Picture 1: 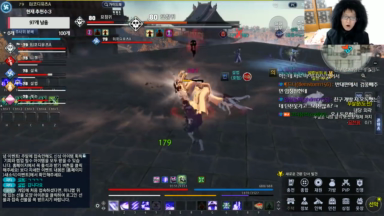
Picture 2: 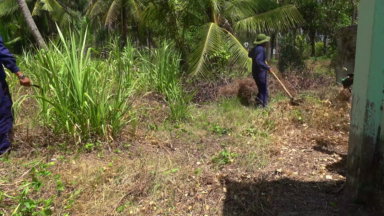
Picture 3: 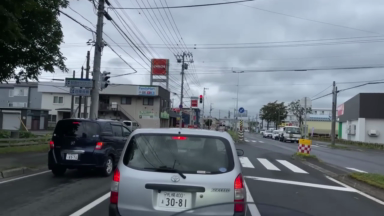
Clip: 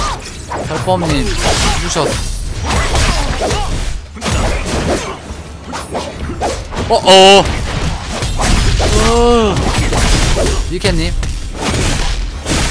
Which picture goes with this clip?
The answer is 1